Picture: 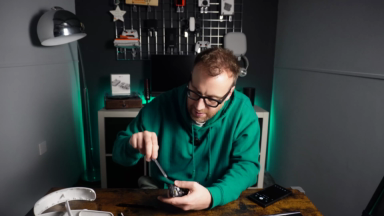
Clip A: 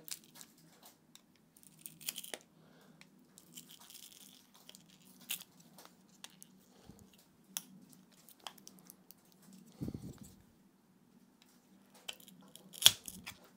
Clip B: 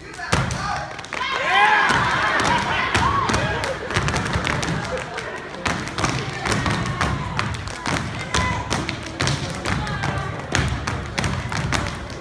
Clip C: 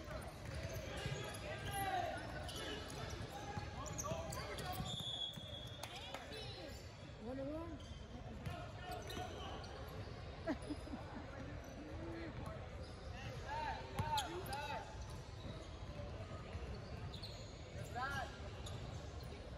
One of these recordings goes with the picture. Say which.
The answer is A